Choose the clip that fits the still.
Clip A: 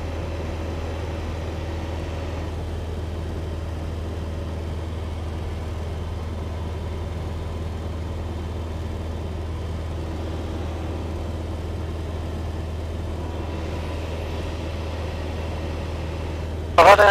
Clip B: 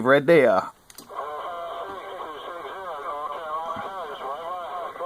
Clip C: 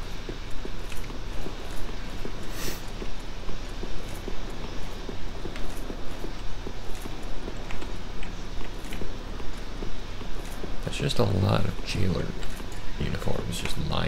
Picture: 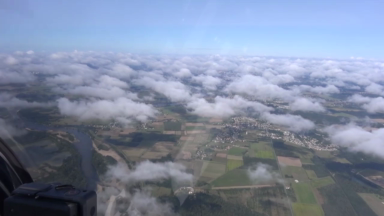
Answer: A